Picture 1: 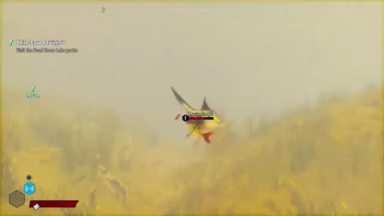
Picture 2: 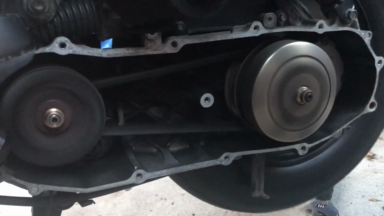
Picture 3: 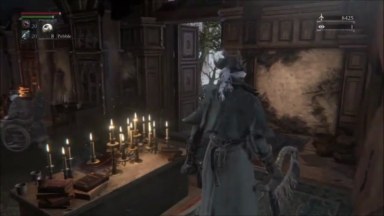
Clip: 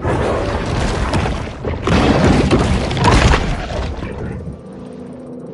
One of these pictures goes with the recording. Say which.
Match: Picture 1